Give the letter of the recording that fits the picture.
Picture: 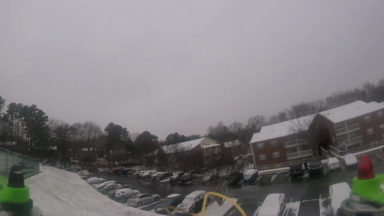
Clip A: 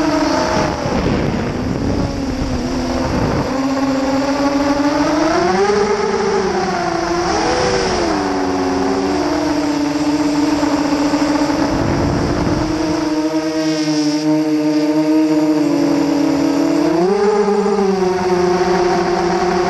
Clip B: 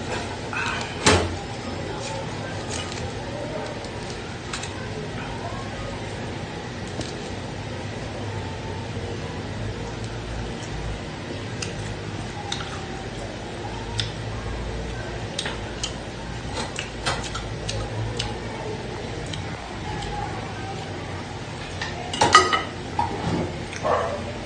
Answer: A